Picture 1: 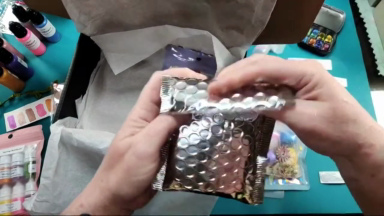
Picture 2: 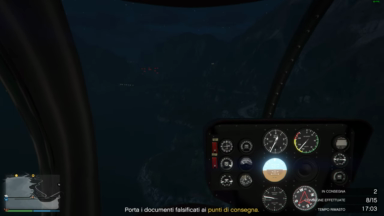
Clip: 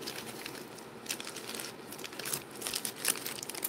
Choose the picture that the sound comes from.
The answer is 1